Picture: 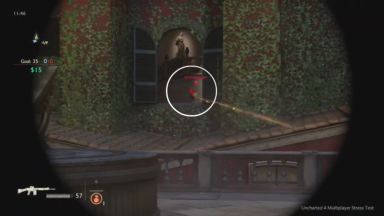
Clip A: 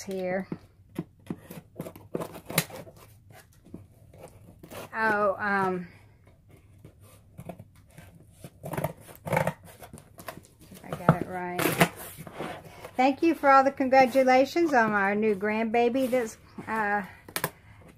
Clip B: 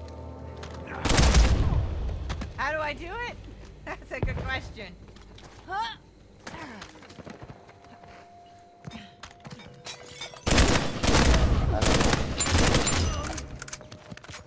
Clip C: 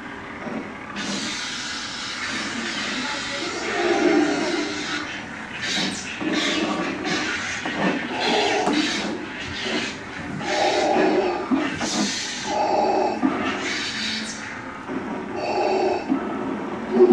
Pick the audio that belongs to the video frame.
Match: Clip B